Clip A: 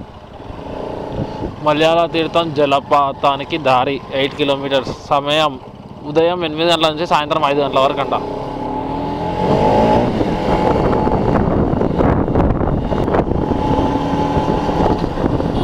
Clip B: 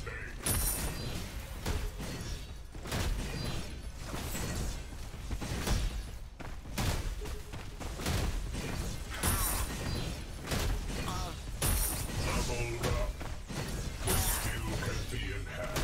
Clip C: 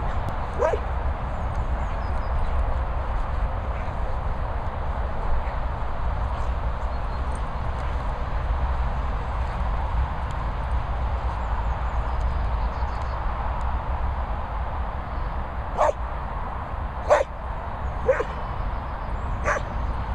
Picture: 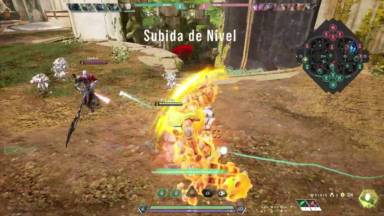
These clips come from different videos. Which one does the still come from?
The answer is B